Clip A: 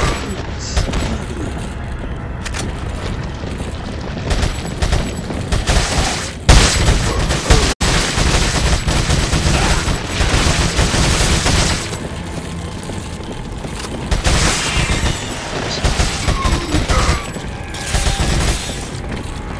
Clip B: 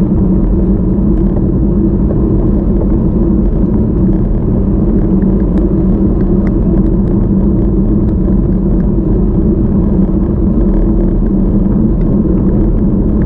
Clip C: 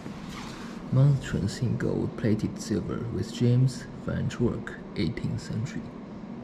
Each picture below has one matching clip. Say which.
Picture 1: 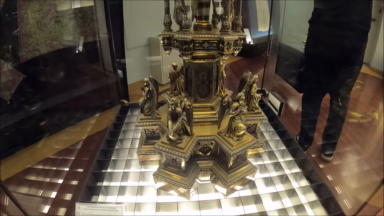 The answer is C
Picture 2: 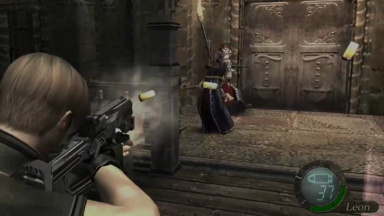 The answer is A